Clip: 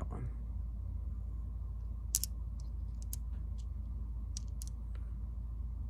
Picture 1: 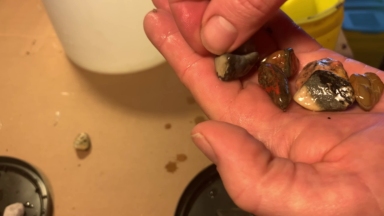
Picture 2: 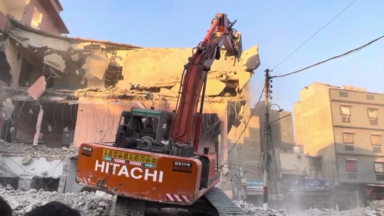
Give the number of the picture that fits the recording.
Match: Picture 1